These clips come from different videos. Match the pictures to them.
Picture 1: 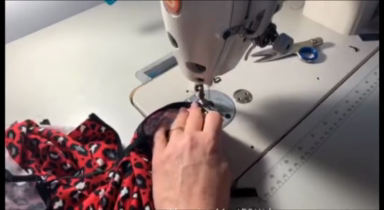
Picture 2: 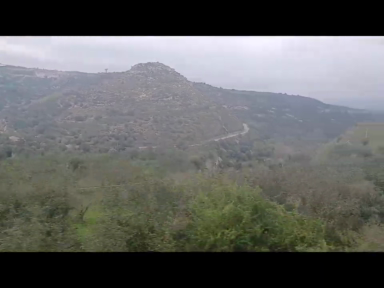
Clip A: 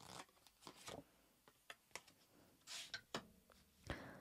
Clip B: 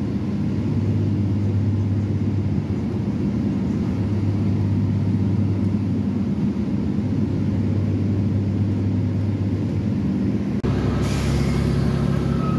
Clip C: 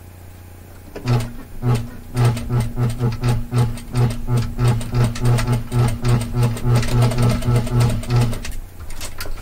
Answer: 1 C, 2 B